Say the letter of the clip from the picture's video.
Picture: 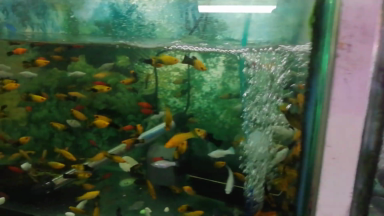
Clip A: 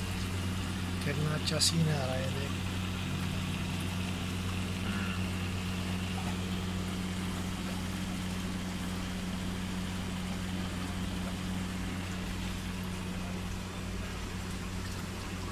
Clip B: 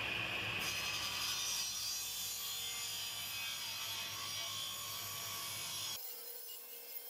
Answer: A